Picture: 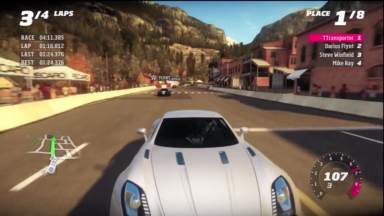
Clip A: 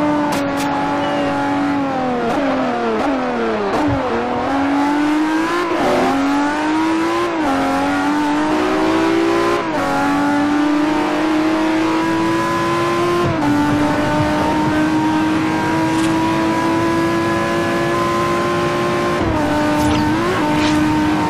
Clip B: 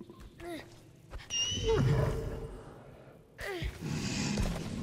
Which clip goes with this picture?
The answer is A